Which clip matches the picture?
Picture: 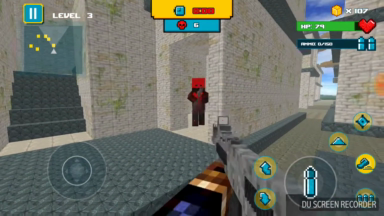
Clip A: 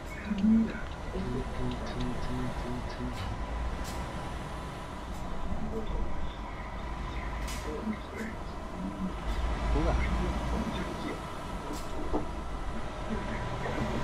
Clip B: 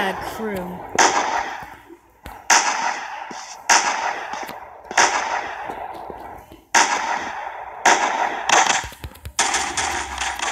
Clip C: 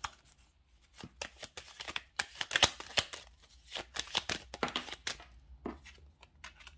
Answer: B